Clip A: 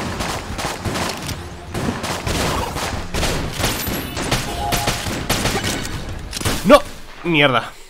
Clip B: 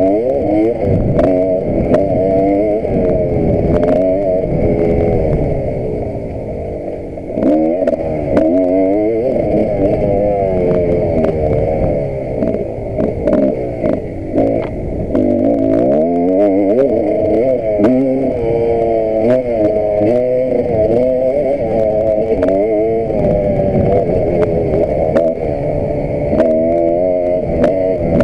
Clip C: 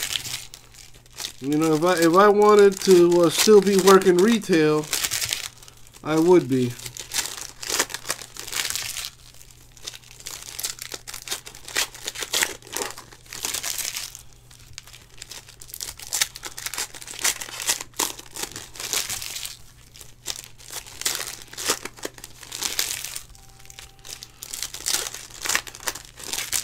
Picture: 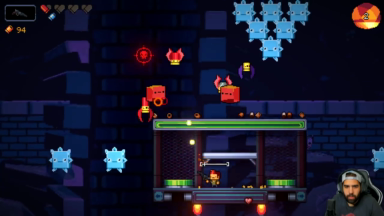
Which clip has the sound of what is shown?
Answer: A